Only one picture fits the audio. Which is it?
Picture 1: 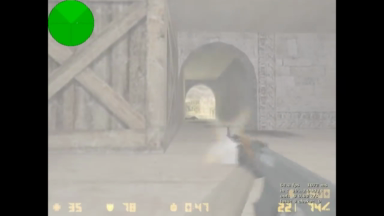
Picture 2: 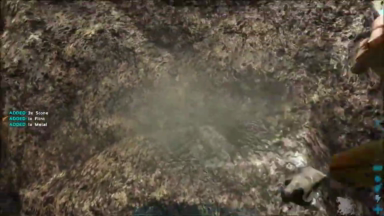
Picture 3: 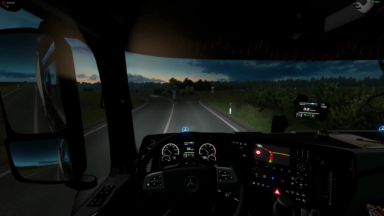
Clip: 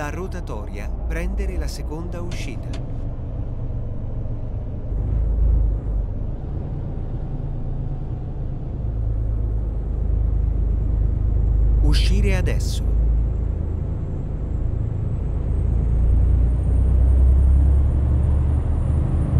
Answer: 3